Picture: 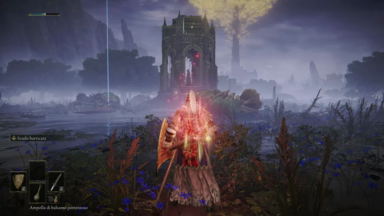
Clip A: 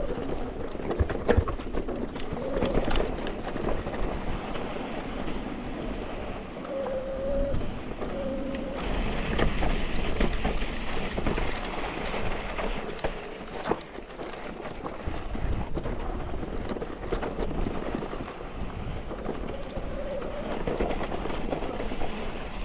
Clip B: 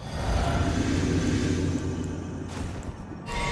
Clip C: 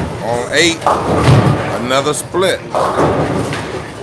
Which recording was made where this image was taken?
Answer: B